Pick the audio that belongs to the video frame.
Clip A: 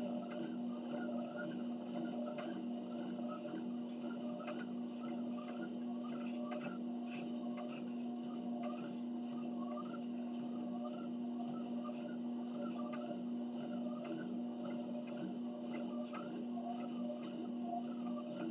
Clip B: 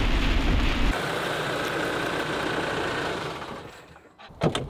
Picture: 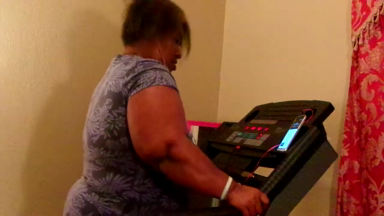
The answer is A